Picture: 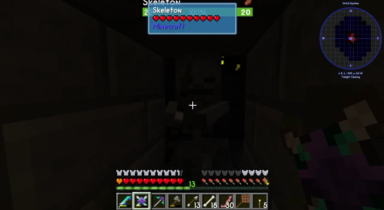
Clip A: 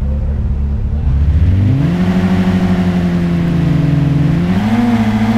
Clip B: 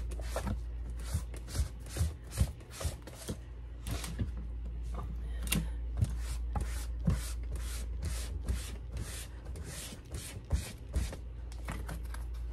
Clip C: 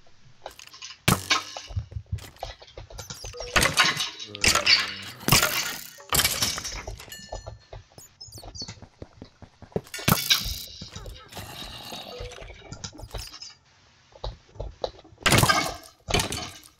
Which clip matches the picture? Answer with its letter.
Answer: C